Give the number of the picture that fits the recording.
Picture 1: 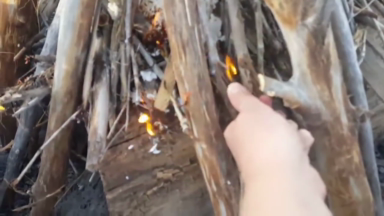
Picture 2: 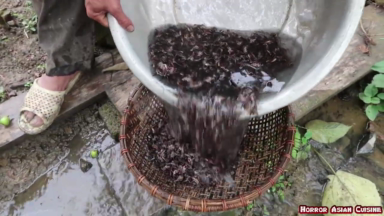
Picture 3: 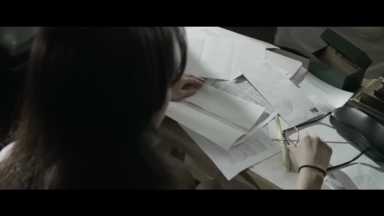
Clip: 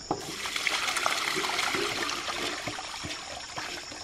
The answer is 2